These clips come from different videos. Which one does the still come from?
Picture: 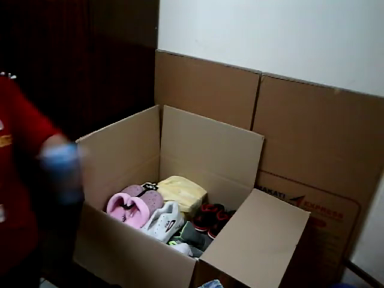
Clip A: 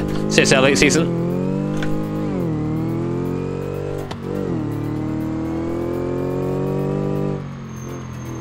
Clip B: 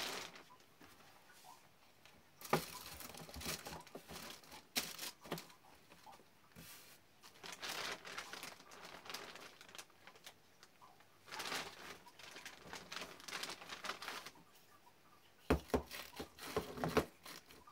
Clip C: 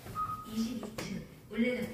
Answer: B